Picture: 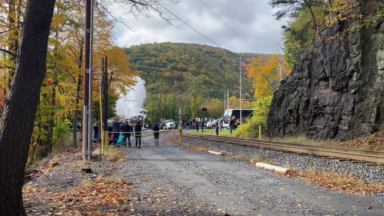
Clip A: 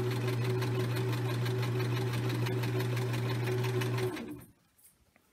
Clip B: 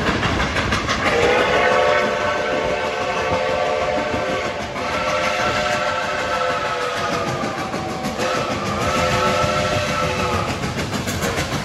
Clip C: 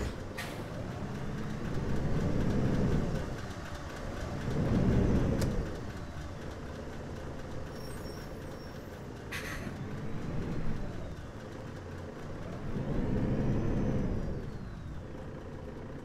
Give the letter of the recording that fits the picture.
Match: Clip B